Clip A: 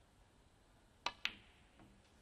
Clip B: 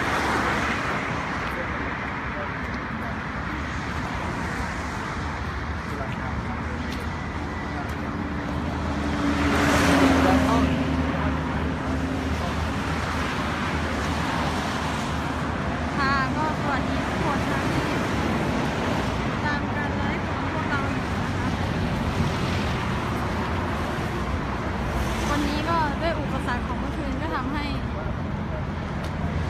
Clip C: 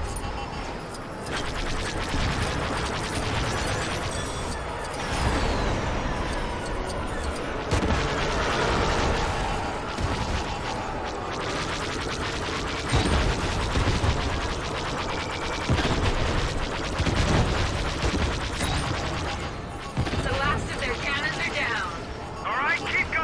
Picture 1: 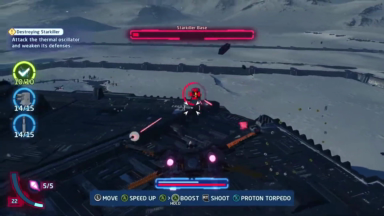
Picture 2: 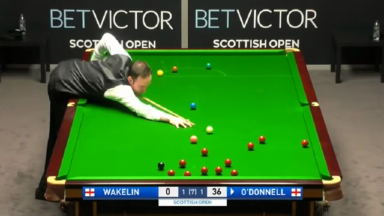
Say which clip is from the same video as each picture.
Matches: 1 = C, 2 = A